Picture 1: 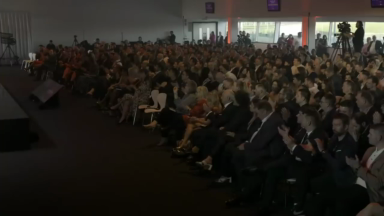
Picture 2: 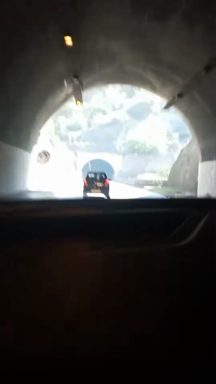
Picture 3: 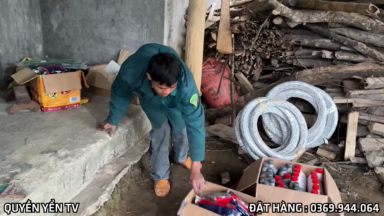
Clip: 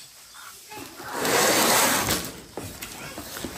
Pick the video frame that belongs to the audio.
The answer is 3